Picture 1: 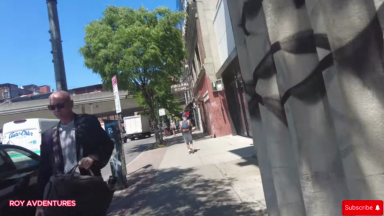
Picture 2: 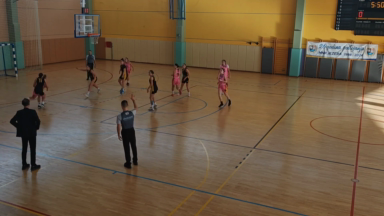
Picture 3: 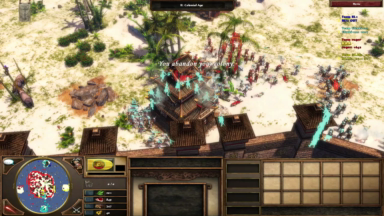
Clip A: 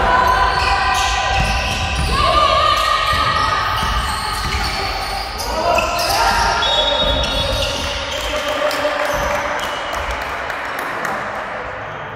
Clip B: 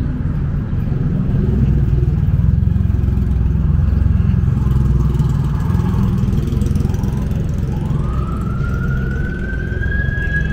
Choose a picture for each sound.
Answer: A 2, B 1